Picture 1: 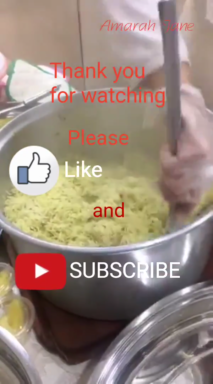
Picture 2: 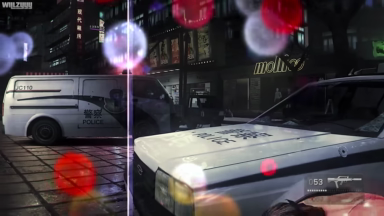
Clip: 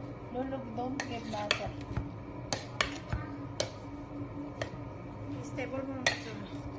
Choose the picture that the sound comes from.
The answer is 1